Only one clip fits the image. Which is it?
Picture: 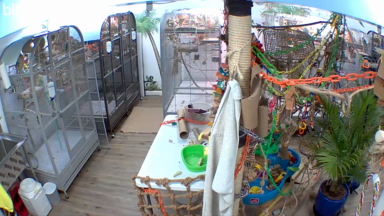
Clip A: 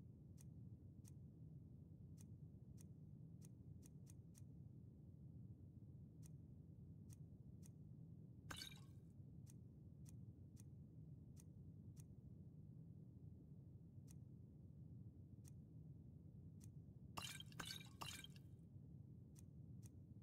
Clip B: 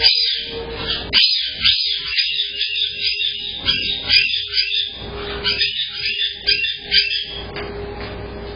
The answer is B